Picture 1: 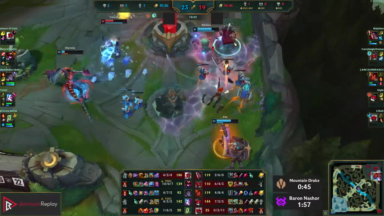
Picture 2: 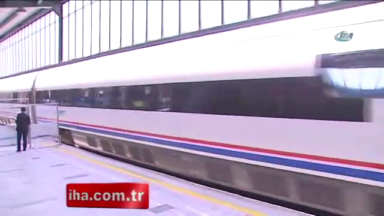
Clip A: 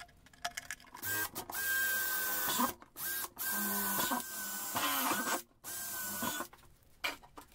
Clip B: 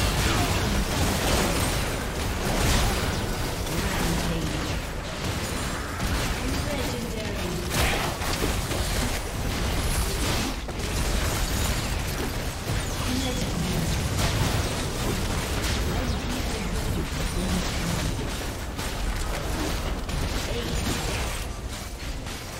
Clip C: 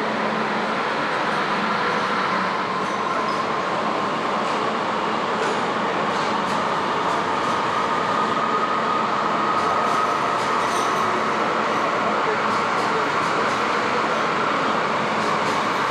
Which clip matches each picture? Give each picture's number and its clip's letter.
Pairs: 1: B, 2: C